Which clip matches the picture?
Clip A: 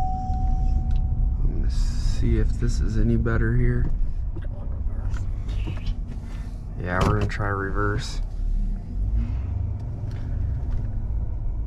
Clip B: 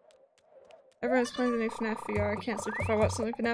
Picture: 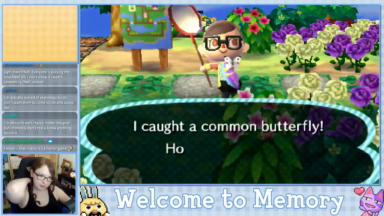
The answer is B